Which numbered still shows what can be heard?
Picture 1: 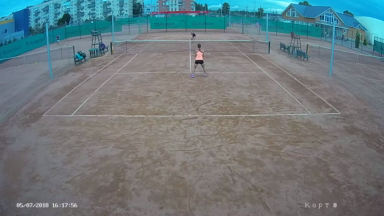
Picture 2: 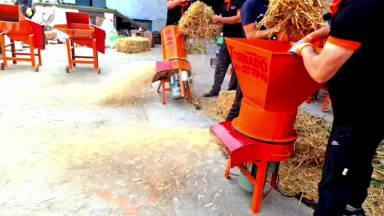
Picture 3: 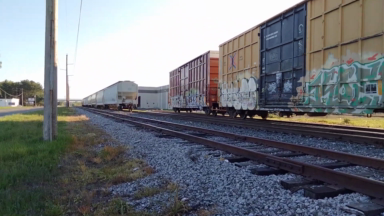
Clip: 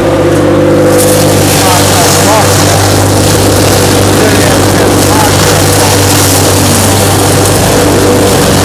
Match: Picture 2